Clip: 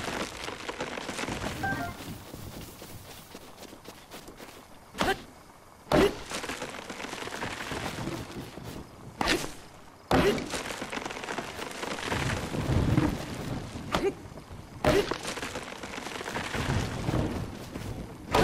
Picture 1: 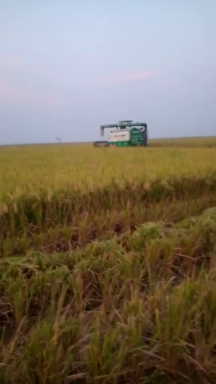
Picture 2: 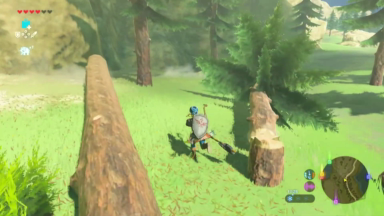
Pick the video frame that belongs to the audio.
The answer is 2